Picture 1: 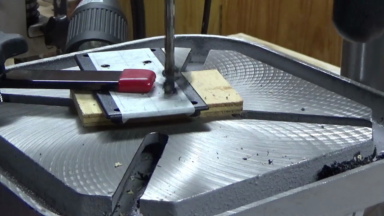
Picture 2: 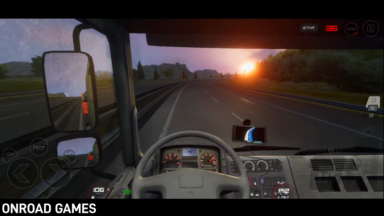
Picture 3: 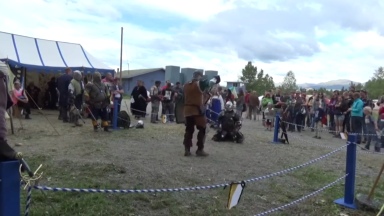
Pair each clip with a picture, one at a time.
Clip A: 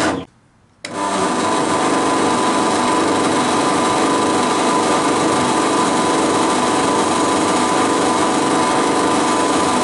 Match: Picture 1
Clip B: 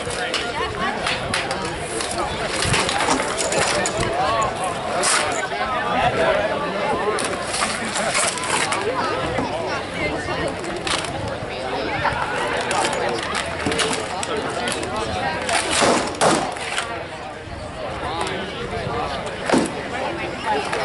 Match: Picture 3